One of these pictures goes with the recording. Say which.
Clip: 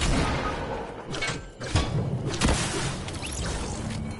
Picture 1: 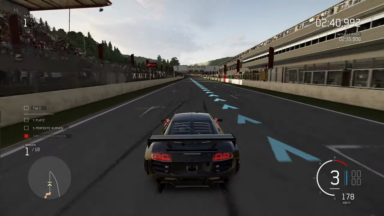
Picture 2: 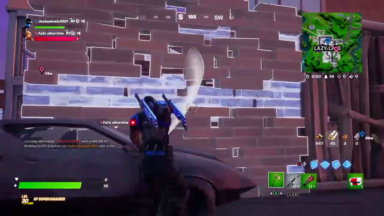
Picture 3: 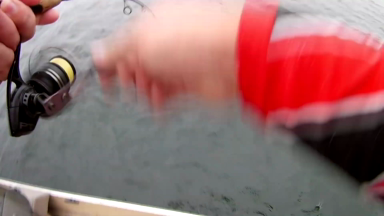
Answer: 2